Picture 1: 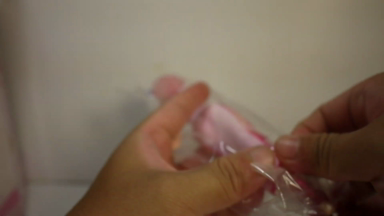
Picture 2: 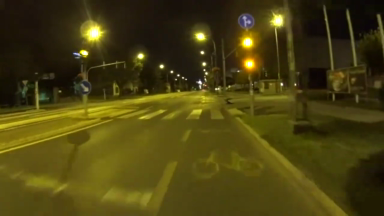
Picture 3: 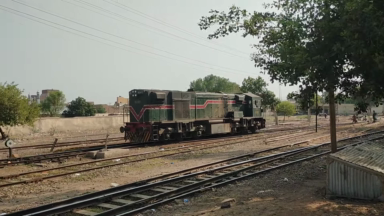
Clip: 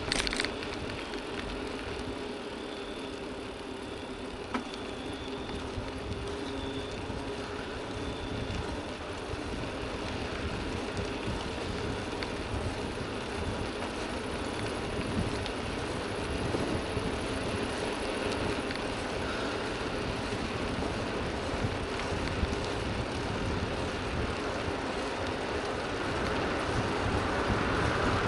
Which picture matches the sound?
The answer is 2